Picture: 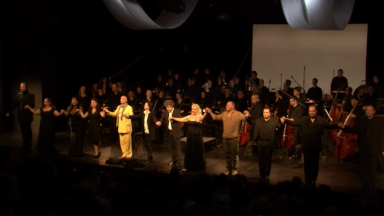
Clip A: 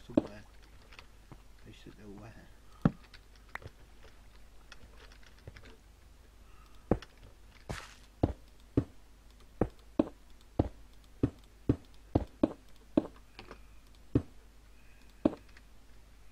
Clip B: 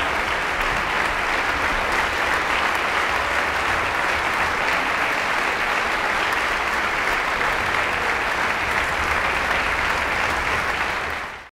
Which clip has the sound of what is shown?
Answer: B